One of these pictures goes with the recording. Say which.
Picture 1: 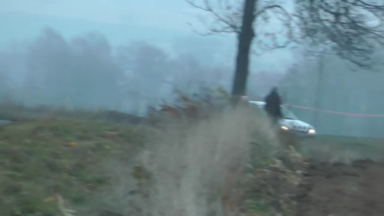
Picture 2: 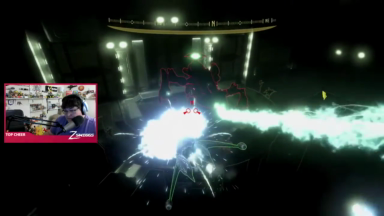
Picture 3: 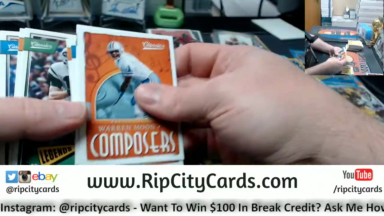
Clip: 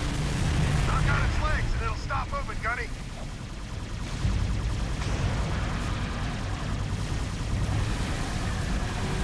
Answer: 2